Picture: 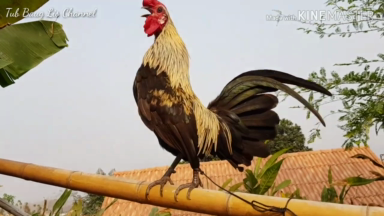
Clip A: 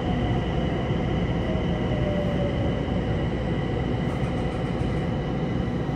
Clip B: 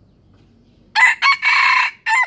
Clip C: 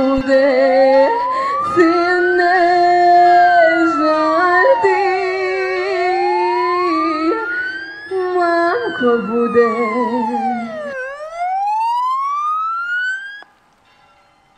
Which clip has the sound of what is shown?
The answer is B